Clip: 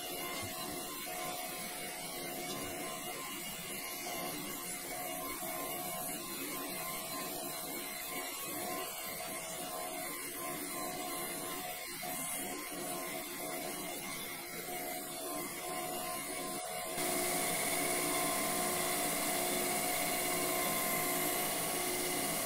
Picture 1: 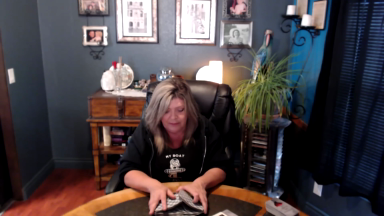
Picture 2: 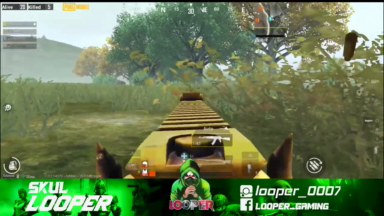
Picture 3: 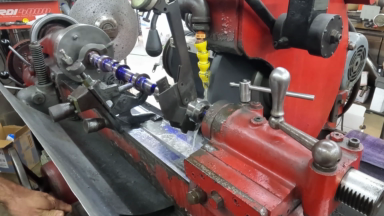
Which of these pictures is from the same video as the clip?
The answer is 3